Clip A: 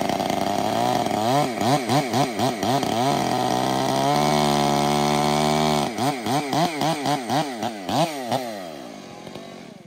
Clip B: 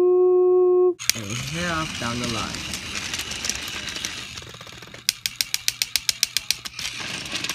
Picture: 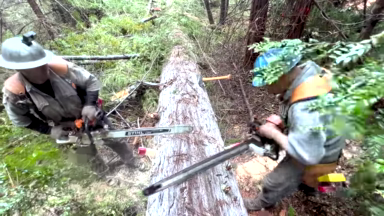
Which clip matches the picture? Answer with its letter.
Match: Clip A